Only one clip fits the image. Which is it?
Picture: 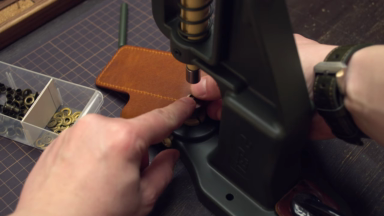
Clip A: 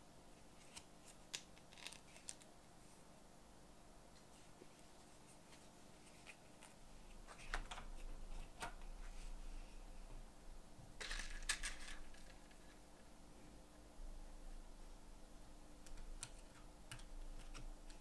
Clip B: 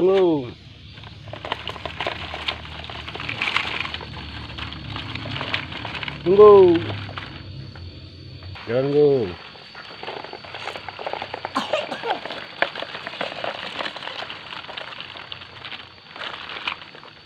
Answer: A